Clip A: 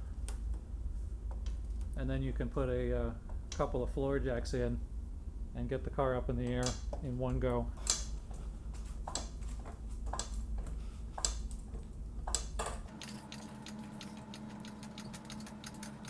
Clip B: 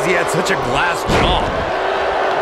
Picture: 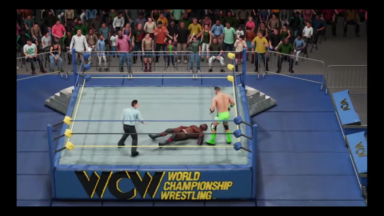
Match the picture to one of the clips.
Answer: B